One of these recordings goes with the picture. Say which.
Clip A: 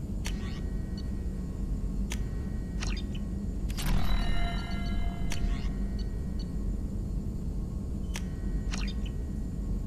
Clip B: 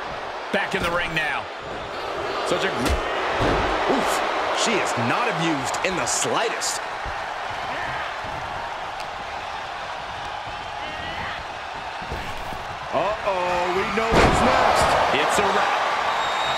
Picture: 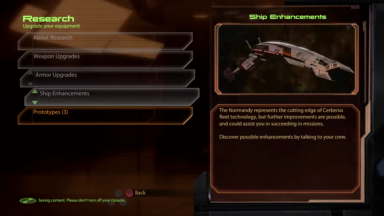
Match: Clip A